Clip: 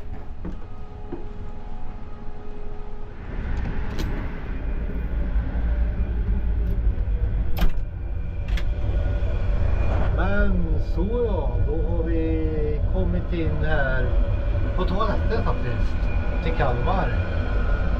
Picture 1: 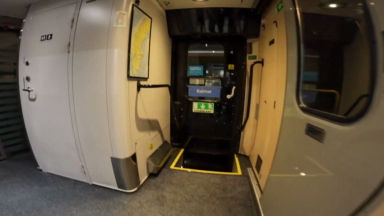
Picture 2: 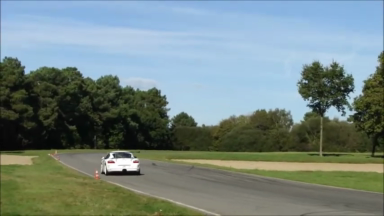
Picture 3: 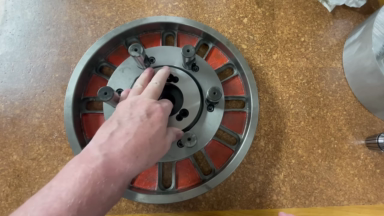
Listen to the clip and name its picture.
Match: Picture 1